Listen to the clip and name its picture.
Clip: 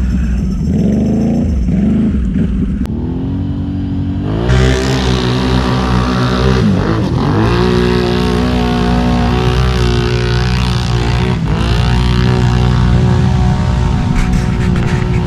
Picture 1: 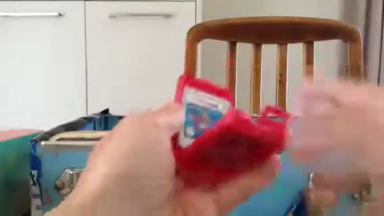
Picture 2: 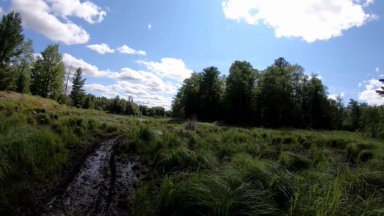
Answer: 2